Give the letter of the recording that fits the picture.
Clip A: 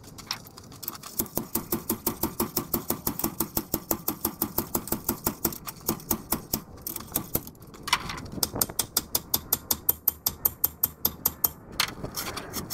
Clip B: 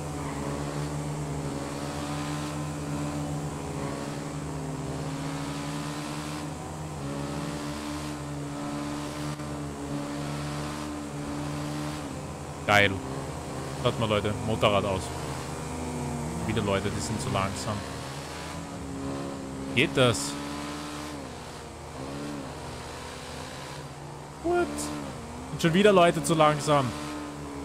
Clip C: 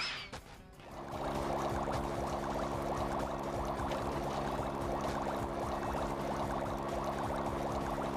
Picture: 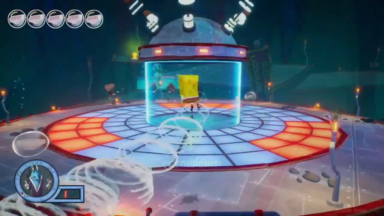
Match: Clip C